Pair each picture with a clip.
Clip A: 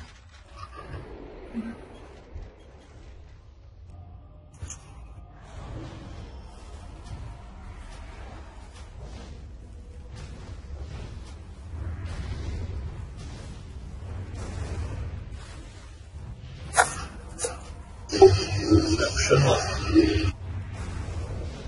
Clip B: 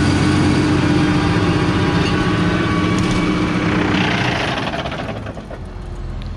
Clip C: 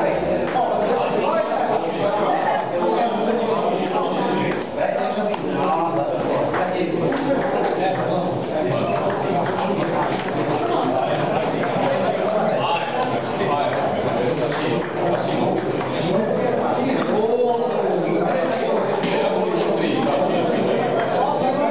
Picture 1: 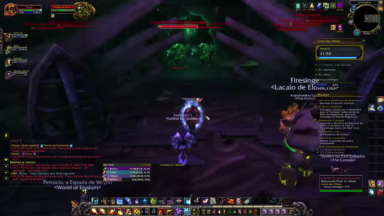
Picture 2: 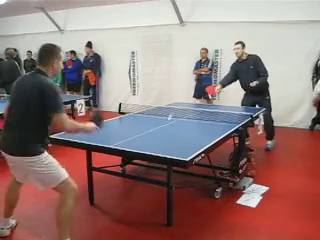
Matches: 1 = A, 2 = C